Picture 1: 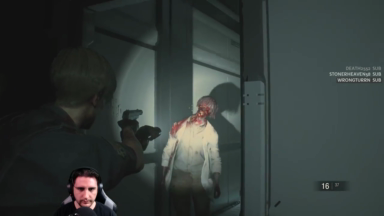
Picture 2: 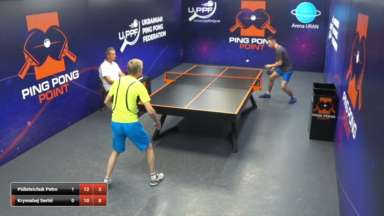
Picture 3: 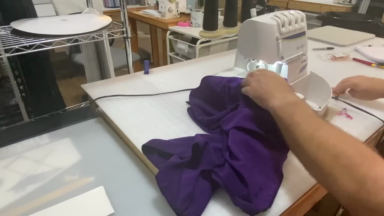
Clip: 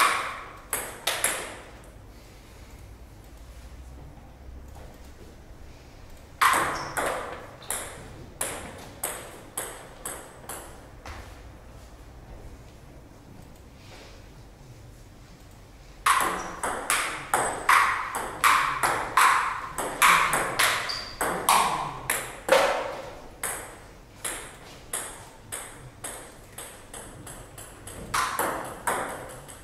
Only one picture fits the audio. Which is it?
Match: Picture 2